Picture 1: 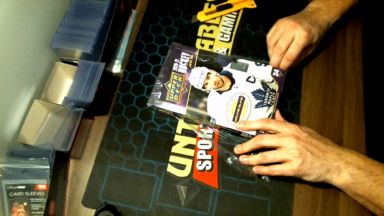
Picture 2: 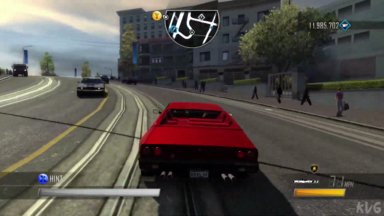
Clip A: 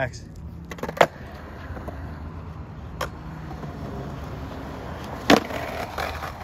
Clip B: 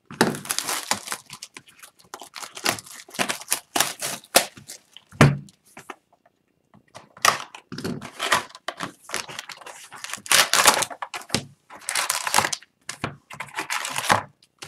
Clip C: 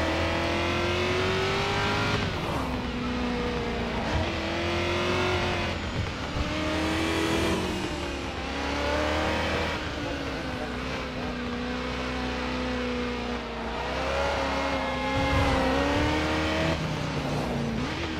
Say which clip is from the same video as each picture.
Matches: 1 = B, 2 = C